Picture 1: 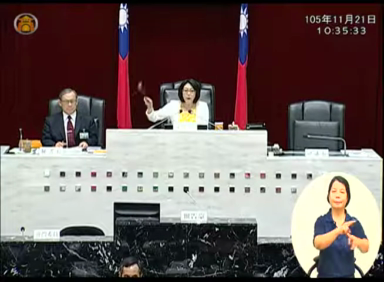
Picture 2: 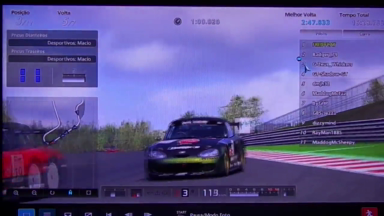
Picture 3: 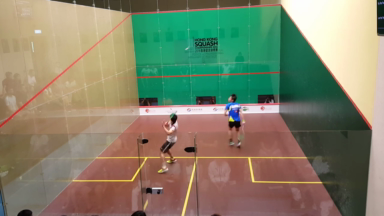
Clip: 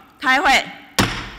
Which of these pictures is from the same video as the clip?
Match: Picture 1